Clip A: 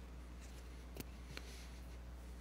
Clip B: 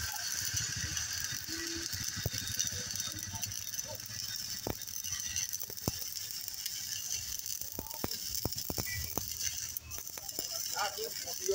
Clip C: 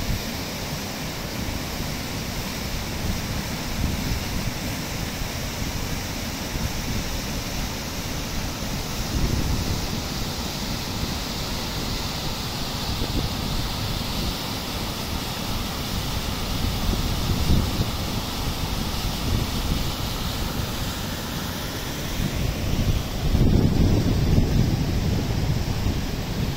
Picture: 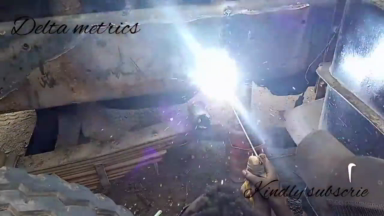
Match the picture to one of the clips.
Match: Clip B